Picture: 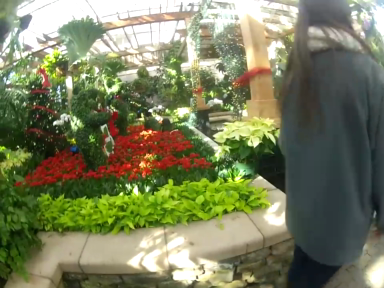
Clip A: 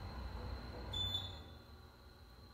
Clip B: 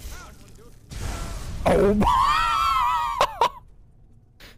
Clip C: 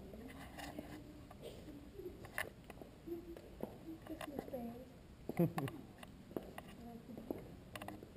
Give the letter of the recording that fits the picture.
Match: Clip C